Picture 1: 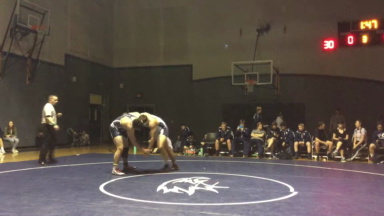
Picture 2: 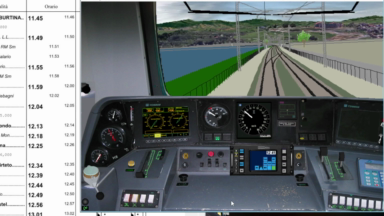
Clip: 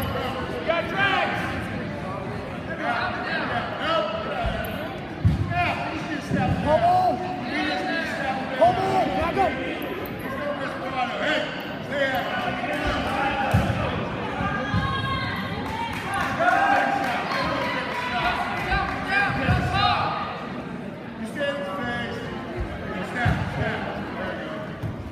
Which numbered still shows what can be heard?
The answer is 1